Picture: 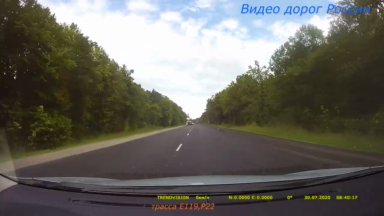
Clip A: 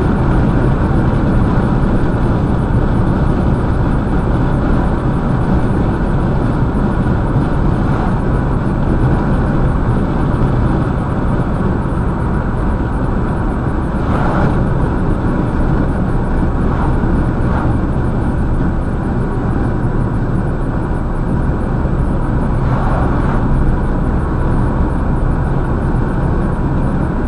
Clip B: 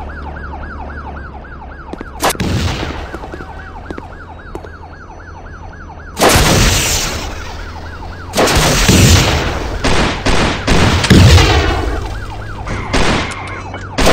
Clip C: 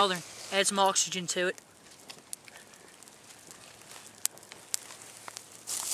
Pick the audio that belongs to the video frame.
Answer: A